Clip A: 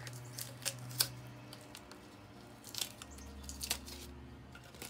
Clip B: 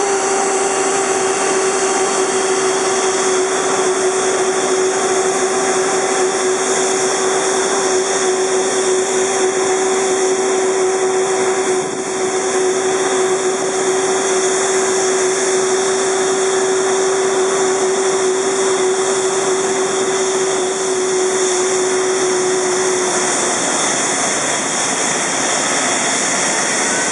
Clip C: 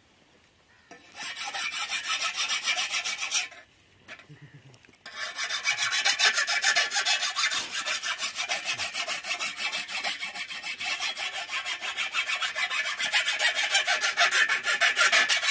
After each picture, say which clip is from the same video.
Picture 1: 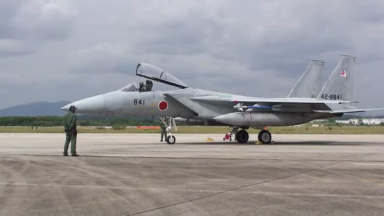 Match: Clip B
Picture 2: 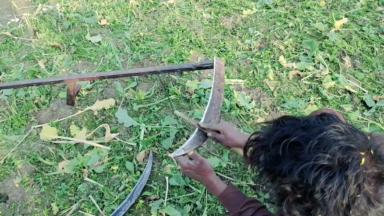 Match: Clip C